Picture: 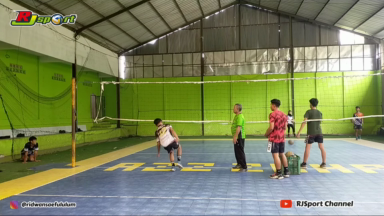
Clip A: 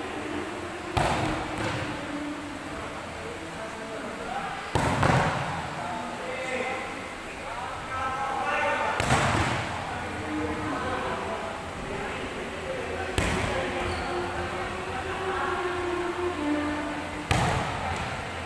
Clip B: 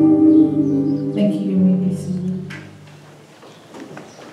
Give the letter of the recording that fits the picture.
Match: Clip A